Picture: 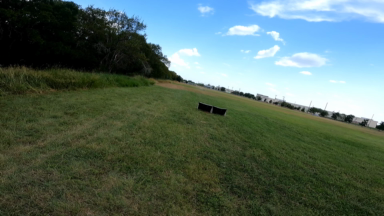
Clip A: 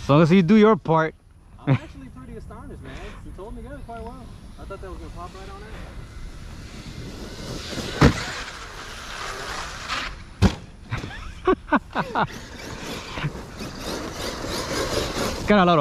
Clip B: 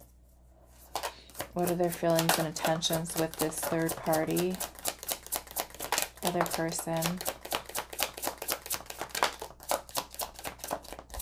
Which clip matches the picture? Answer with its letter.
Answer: A